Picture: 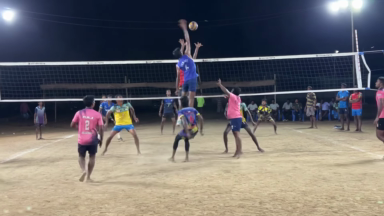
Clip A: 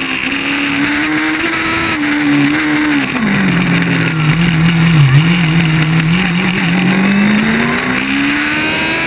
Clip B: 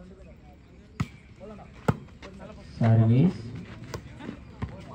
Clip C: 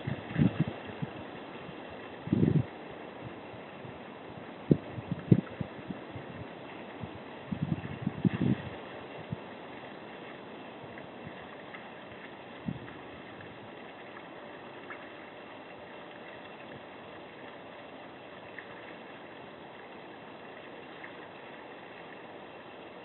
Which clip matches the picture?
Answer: B